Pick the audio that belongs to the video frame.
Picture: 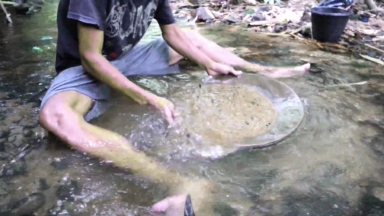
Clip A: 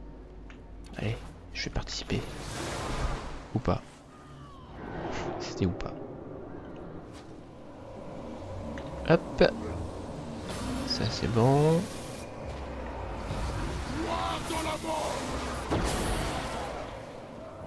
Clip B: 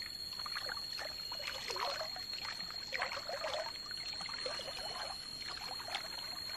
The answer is B